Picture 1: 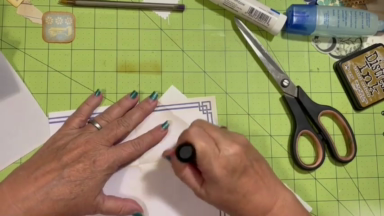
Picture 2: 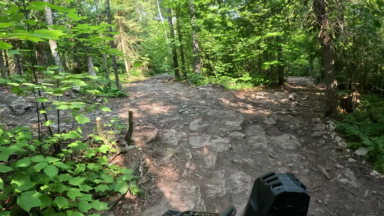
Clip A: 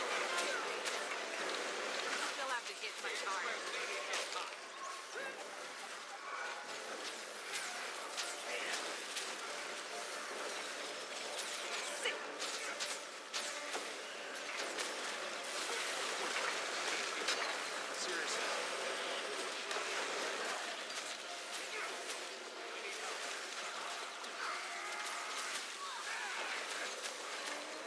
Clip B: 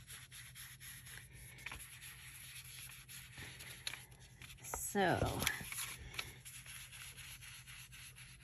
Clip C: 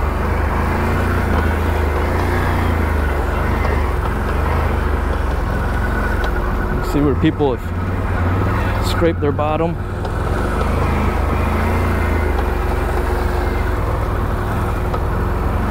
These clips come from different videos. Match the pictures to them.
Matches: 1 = B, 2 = C